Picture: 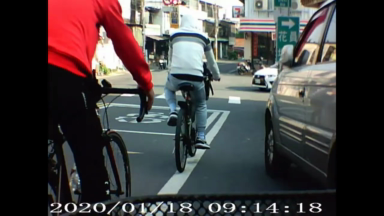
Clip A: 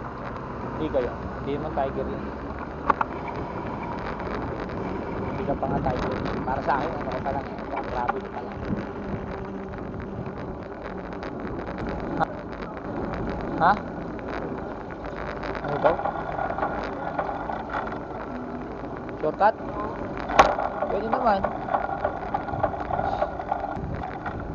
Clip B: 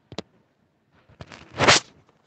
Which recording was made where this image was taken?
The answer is A